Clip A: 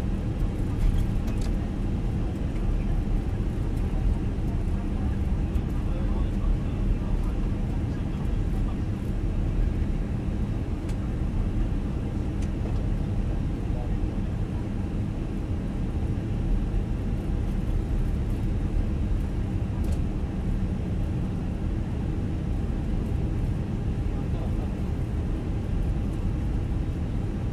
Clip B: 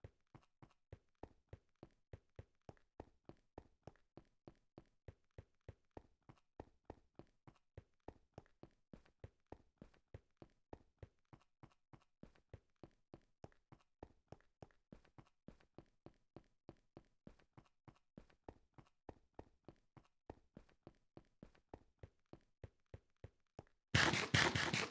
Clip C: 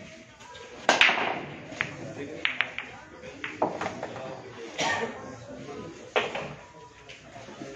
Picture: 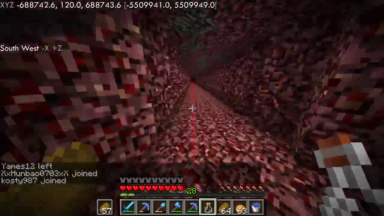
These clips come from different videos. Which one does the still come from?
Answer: B